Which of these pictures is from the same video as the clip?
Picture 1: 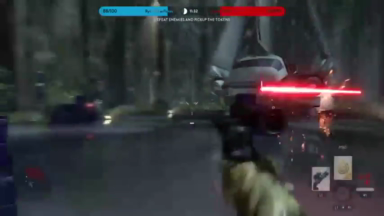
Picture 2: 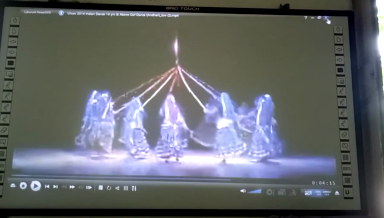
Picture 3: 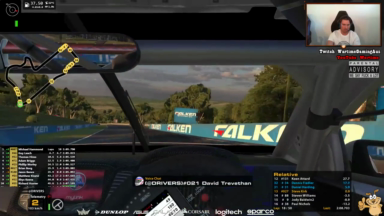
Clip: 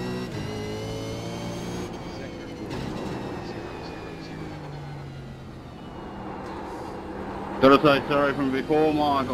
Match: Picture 3